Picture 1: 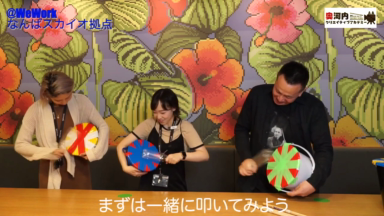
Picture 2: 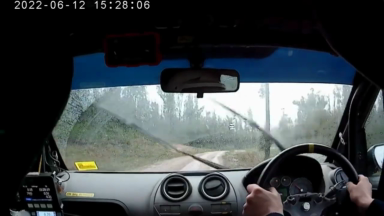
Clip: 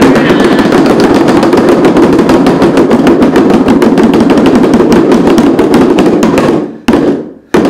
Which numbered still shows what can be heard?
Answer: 1